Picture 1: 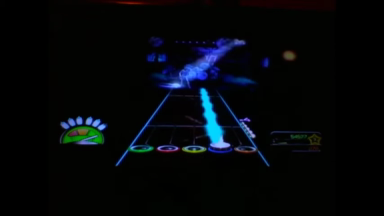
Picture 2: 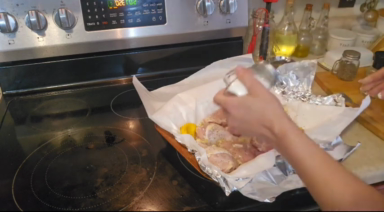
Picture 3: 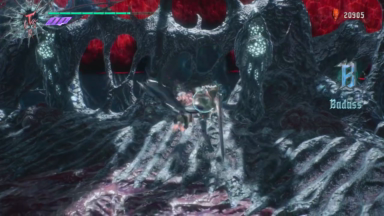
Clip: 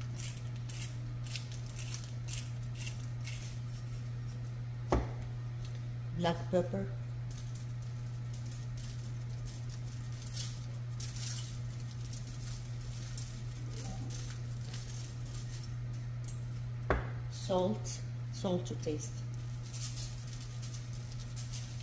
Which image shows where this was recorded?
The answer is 2